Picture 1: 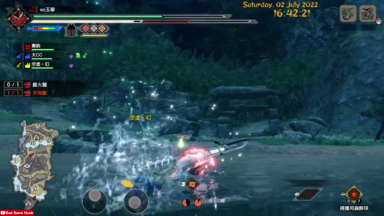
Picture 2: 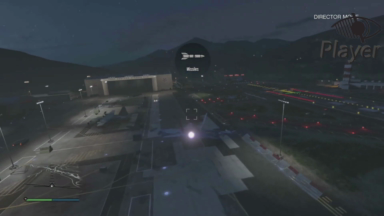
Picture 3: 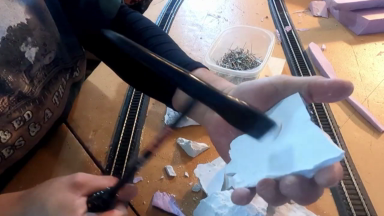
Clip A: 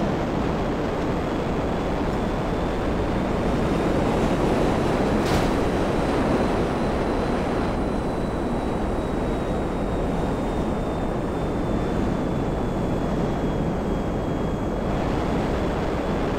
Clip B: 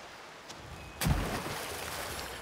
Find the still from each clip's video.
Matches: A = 2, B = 1